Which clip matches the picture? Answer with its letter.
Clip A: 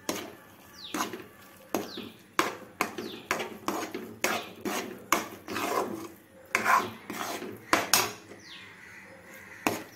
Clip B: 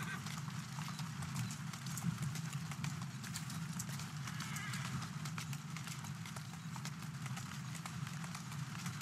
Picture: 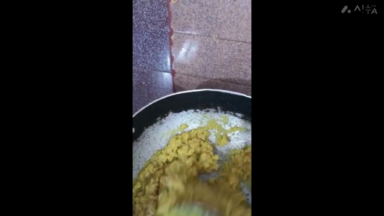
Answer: A